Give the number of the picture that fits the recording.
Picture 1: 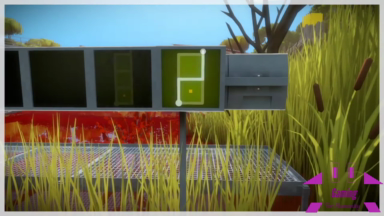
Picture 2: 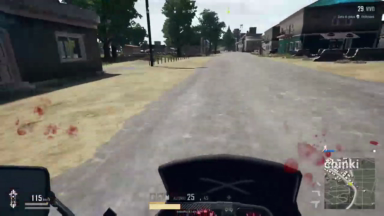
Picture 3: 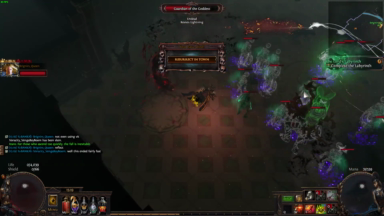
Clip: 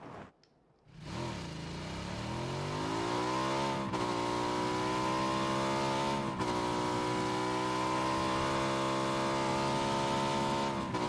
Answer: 2